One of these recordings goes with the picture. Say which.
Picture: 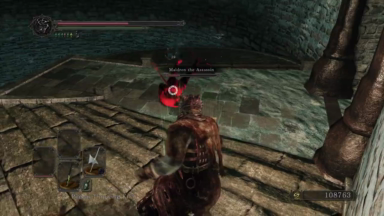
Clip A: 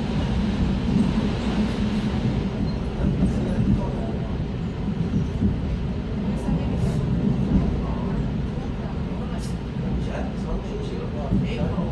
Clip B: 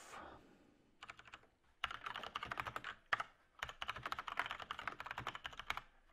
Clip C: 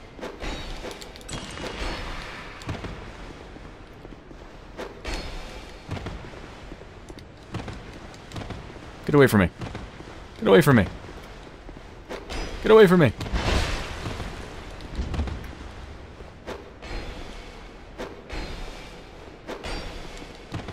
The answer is C